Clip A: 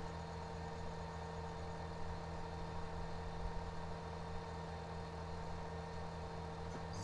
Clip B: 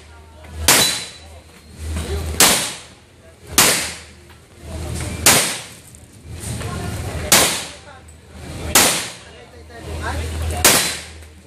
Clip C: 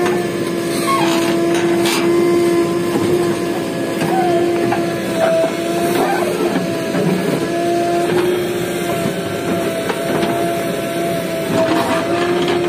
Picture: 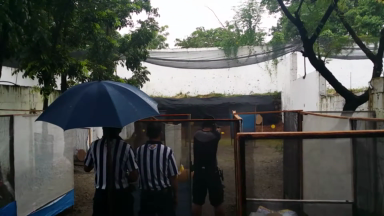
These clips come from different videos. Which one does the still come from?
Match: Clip B